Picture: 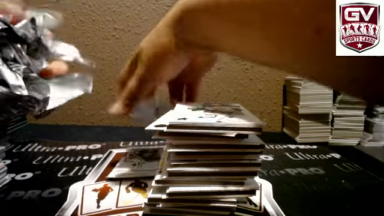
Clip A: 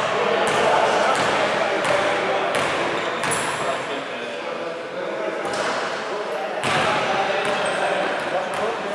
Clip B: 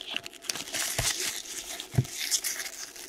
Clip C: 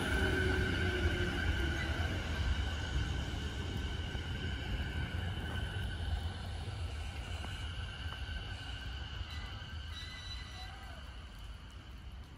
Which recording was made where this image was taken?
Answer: B